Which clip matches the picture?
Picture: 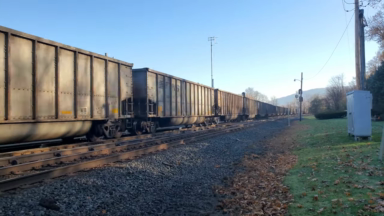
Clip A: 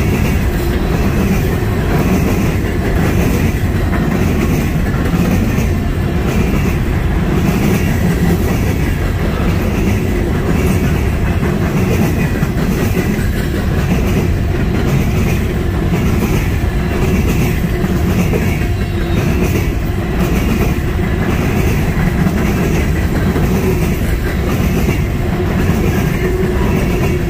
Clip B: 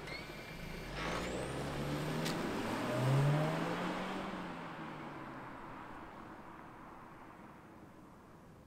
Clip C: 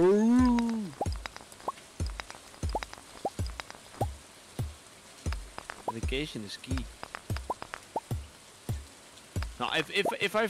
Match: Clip A